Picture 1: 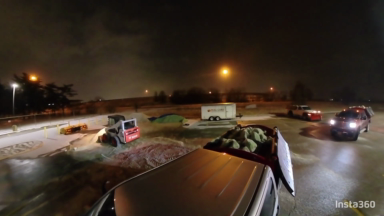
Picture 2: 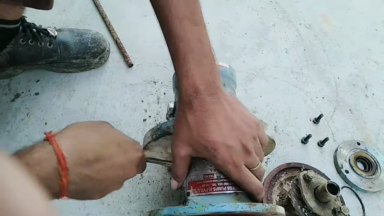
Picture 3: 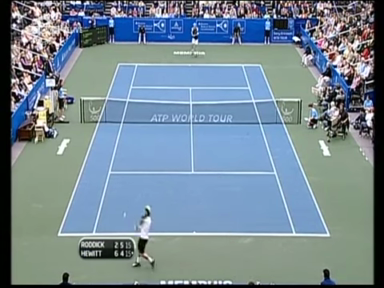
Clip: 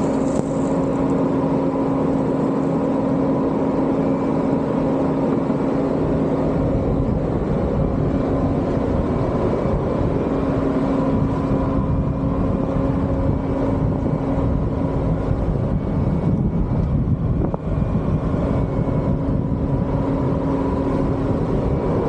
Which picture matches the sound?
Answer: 1